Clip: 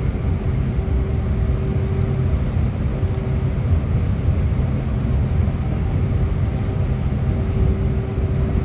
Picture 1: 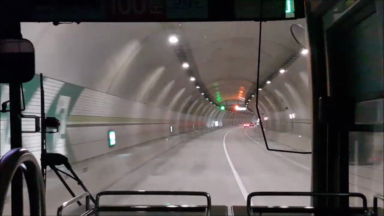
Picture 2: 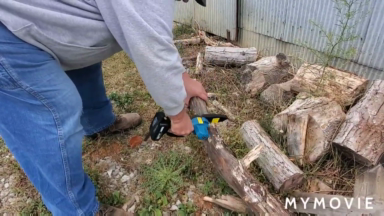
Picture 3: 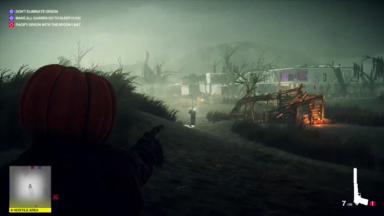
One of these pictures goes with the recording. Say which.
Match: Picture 1